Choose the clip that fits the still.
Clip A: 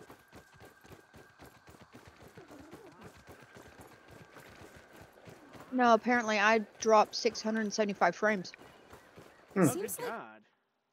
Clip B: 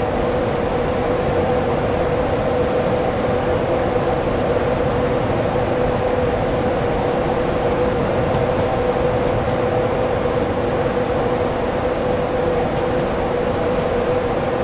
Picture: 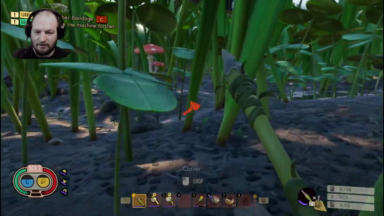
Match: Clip A